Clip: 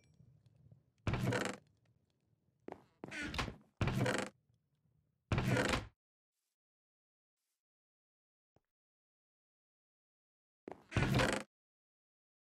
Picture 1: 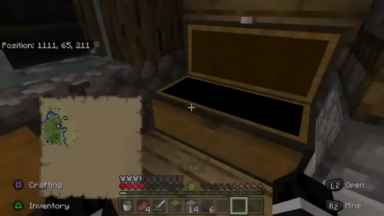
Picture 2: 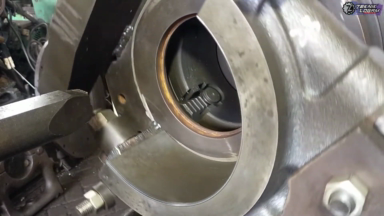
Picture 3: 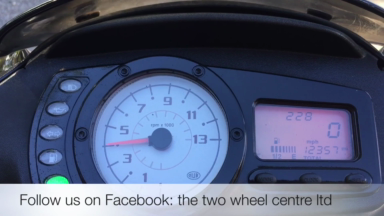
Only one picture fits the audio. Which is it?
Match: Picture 1